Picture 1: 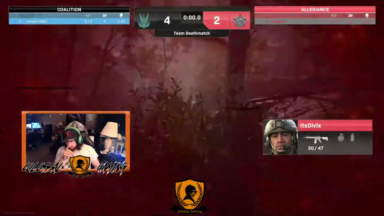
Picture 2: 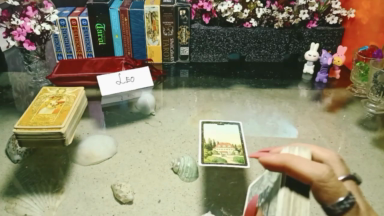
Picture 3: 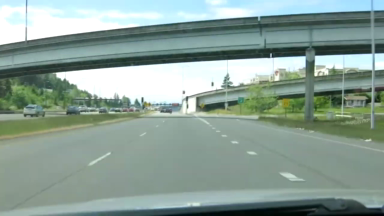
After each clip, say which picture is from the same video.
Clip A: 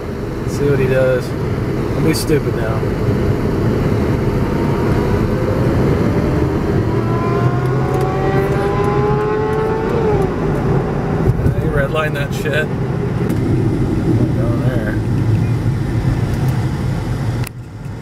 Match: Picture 3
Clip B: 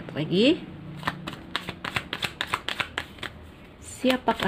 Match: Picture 2